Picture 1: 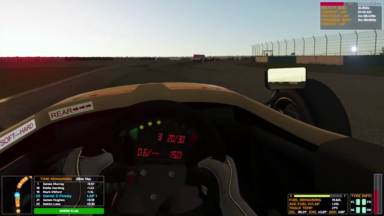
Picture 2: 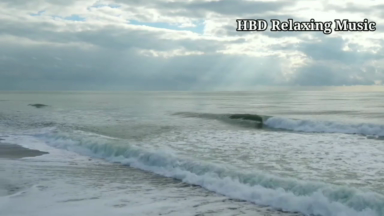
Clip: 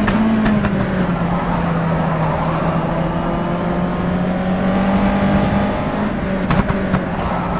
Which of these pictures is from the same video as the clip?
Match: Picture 1